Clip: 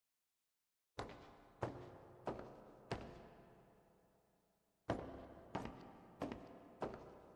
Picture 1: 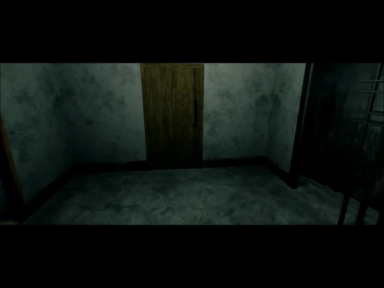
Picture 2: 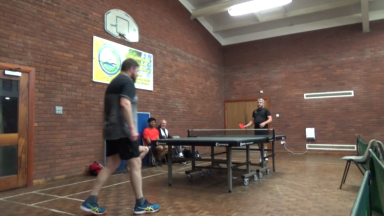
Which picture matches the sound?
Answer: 1